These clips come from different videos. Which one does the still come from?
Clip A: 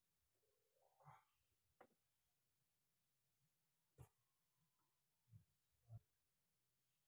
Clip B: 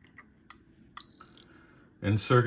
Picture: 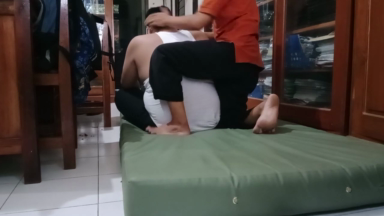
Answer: A